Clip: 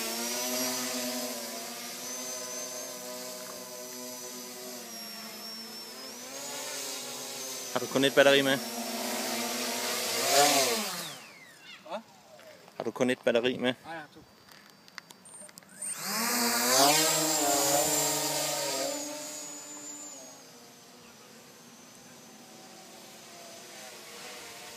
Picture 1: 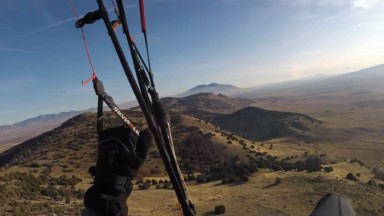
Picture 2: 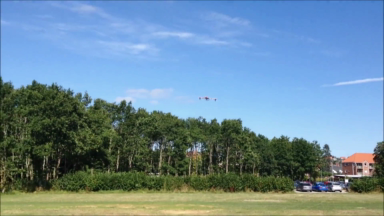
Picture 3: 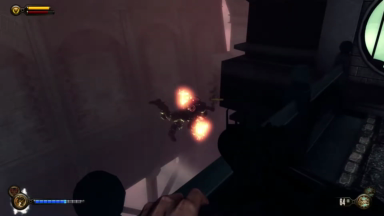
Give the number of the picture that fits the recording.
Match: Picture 2